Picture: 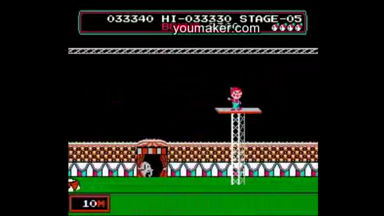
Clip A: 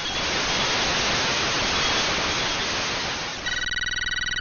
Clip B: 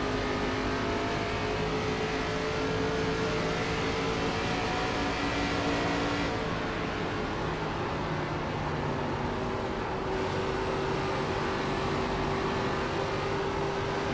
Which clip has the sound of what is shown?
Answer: A